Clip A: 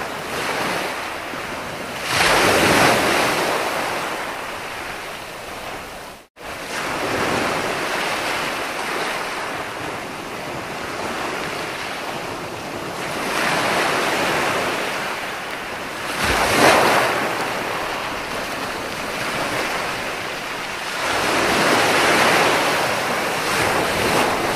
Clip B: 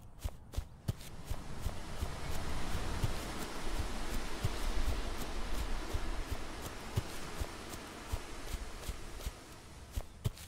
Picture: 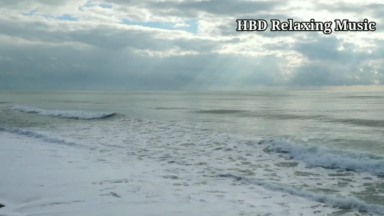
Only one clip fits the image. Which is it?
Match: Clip A